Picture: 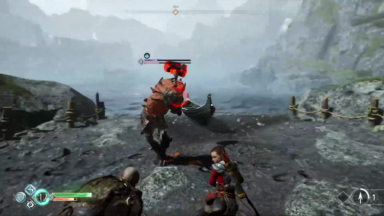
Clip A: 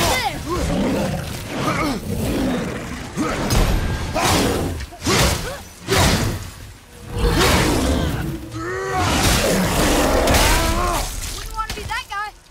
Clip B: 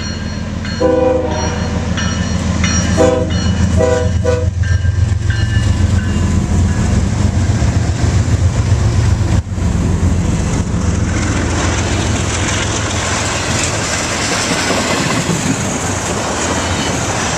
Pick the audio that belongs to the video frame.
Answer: A